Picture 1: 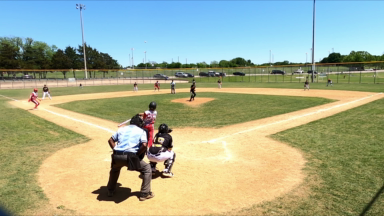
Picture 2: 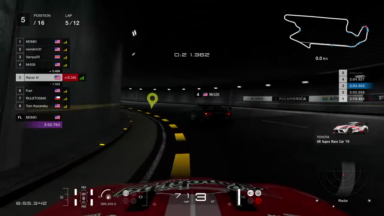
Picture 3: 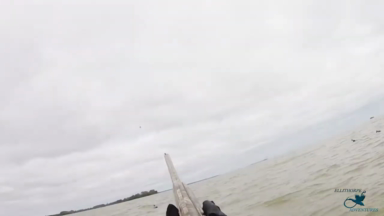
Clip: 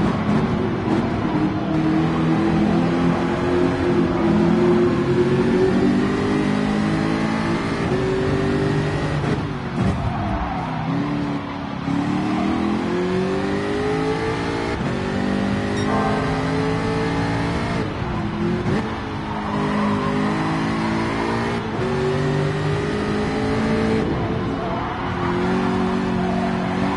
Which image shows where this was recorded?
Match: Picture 2